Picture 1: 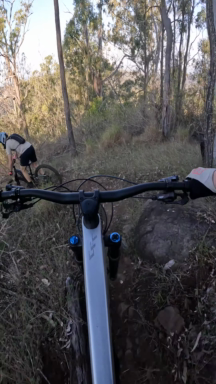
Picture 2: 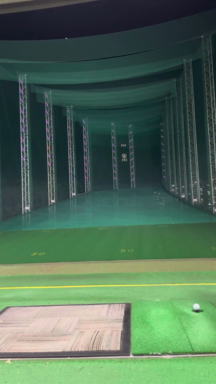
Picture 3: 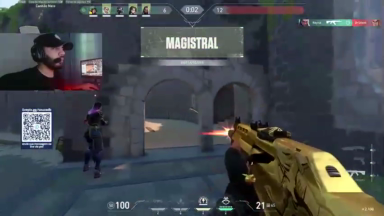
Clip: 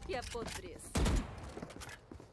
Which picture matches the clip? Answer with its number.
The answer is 3